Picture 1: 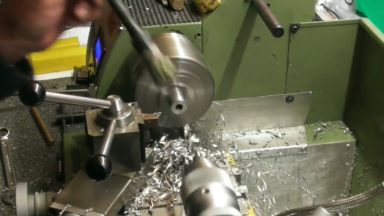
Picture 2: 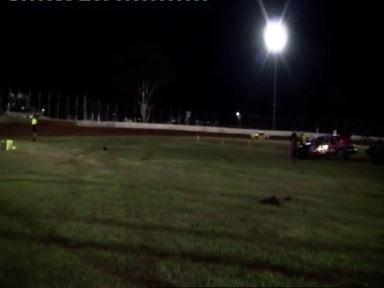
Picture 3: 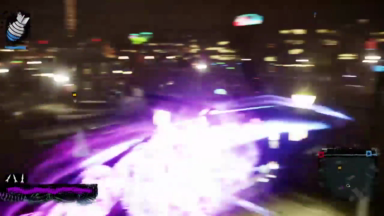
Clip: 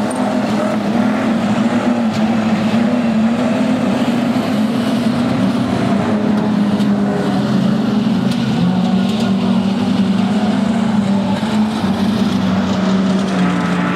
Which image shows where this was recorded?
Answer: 2